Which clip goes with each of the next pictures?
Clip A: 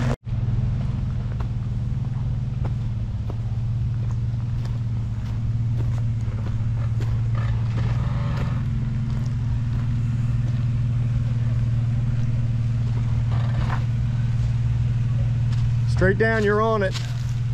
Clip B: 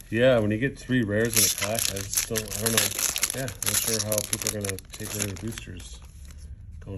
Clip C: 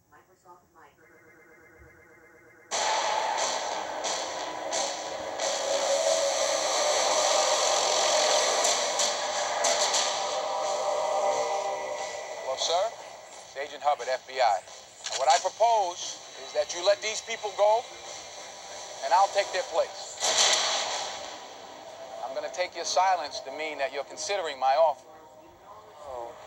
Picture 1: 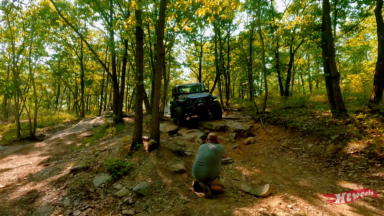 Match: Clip A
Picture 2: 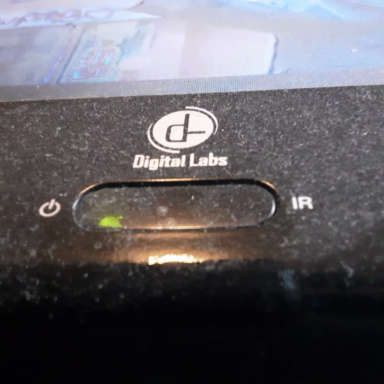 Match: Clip C